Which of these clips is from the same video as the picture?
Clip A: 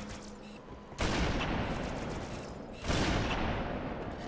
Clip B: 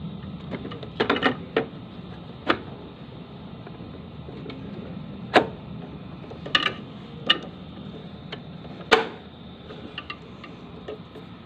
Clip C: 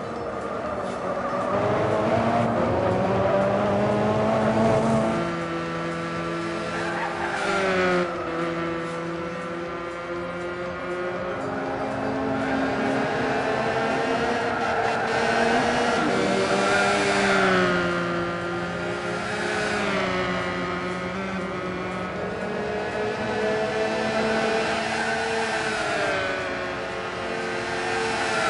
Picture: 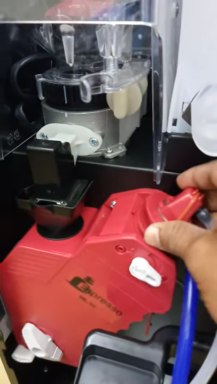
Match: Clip B